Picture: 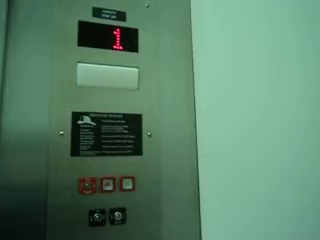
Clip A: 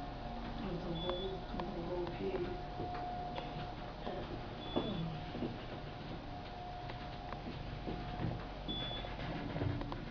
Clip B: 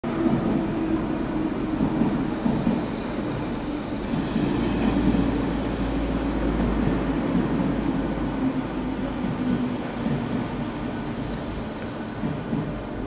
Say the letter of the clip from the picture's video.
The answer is A